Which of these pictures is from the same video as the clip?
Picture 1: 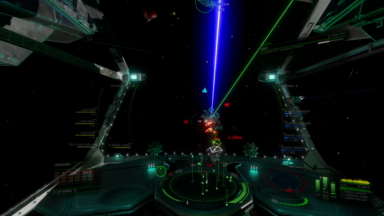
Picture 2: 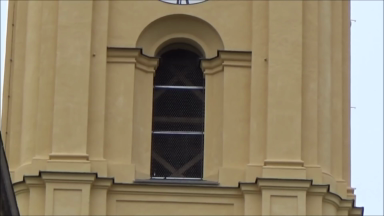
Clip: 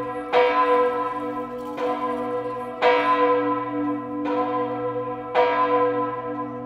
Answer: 2